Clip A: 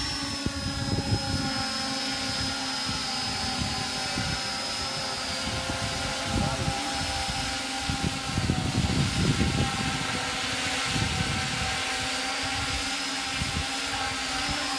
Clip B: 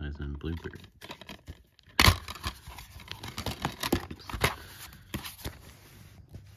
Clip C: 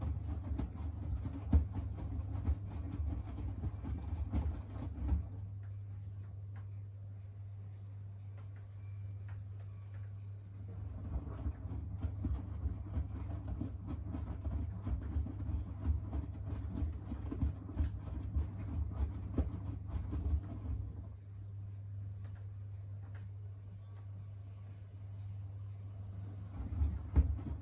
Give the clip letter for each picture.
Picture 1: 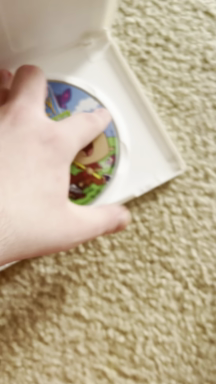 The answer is B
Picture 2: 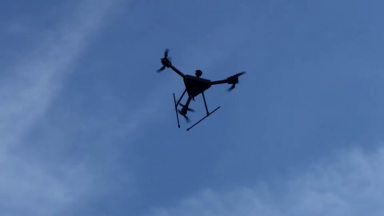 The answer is A